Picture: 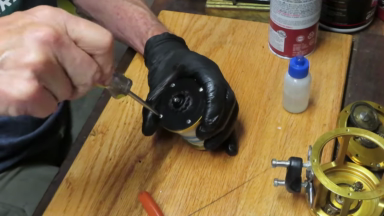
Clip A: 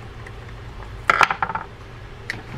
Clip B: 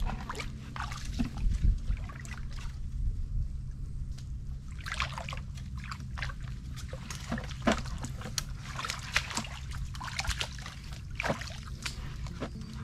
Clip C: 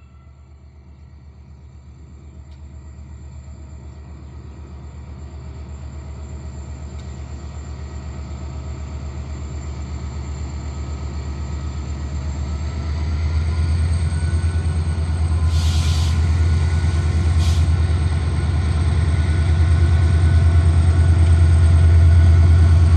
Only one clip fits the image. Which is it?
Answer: A